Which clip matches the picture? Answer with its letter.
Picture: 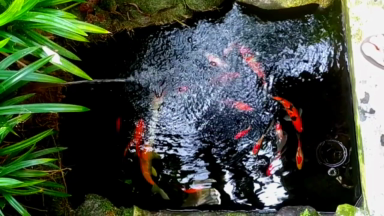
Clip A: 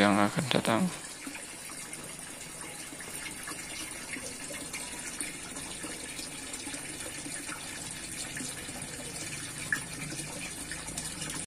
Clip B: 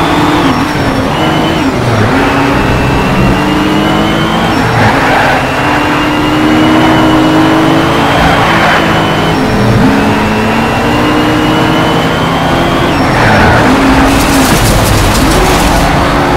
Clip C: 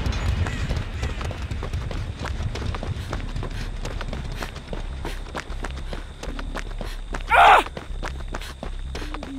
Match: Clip A